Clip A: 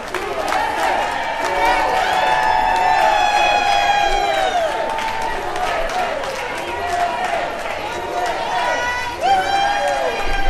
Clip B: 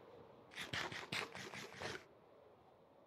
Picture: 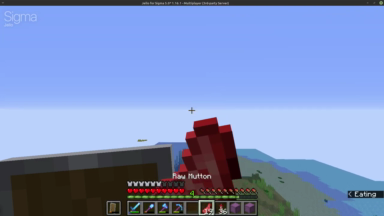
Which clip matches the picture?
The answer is B